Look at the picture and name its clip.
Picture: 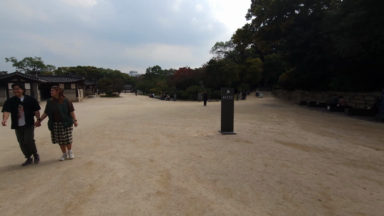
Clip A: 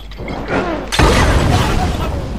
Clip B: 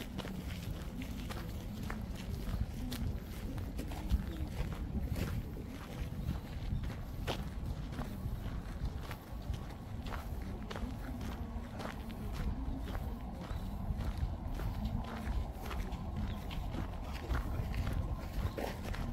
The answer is B